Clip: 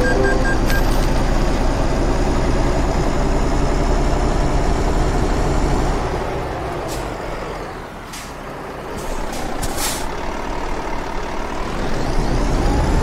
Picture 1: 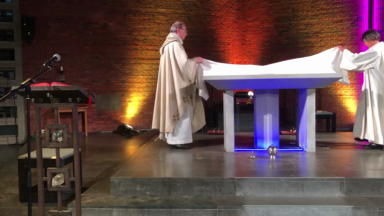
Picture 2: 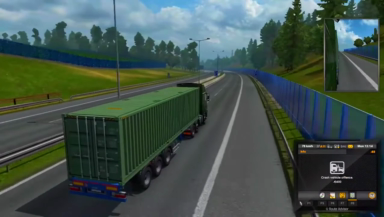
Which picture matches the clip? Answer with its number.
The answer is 2